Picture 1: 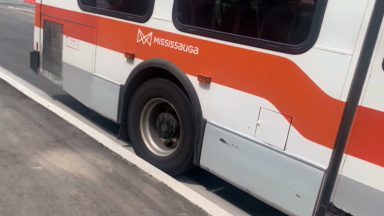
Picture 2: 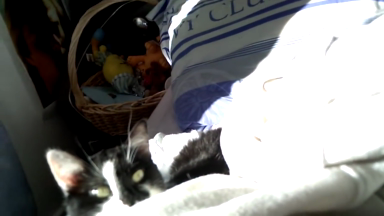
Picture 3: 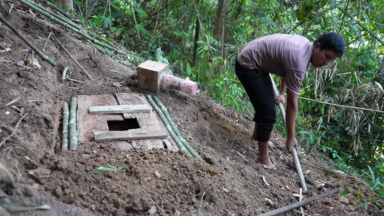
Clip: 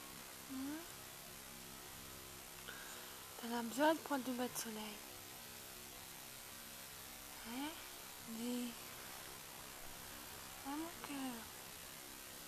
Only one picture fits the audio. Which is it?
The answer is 2